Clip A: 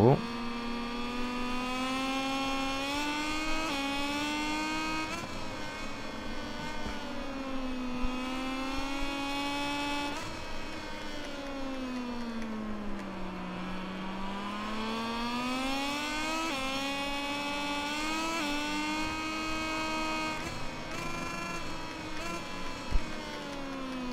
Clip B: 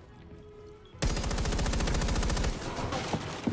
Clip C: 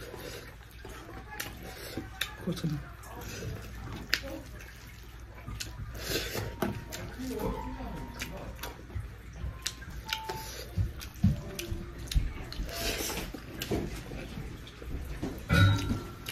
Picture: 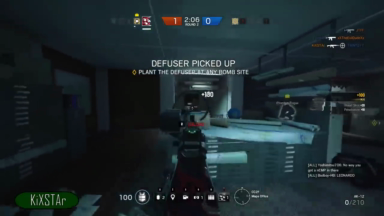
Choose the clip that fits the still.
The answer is B